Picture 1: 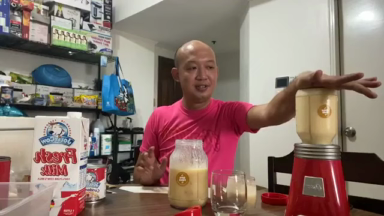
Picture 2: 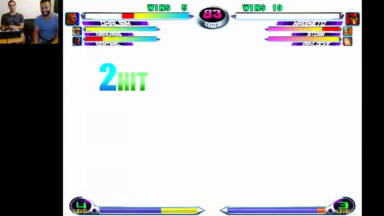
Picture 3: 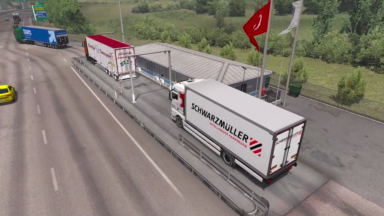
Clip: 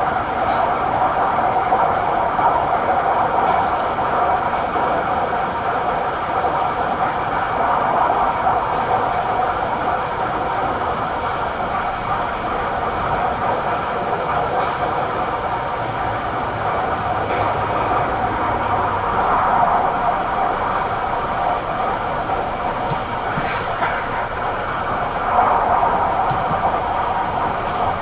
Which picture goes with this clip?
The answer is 3